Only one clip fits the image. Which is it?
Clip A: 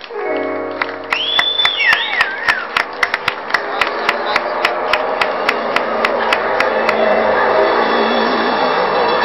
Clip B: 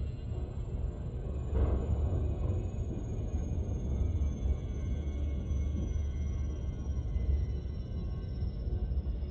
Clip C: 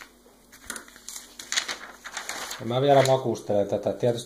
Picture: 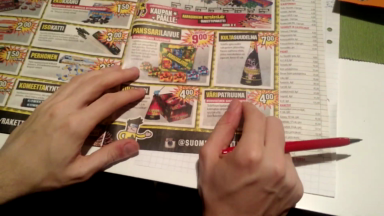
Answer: C